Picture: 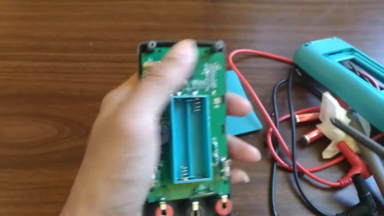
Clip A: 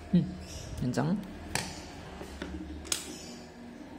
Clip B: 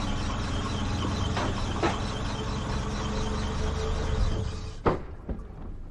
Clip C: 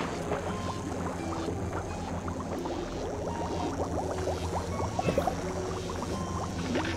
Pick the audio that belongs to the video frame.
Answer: A